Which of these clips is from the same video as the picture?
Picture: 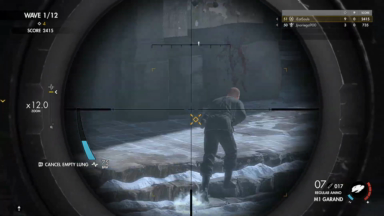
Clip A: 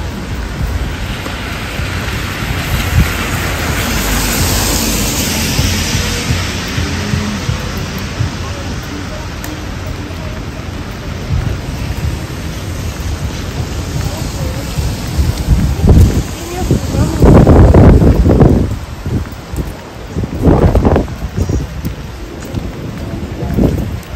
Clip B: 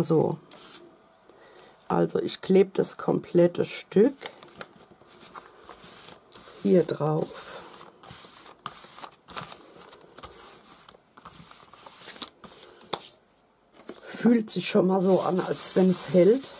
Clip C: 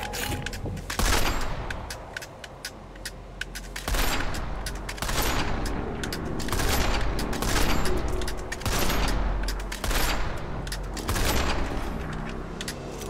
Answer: C